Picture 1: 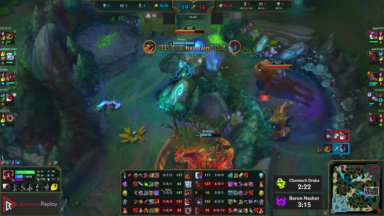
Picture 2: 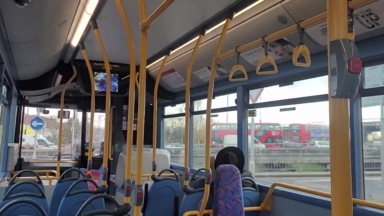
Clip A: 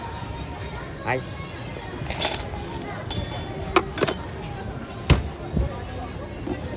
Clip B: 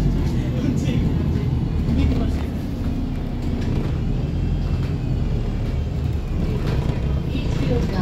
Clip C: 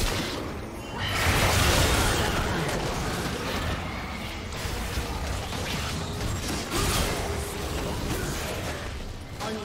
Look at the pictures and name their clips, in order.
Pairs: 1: C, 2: B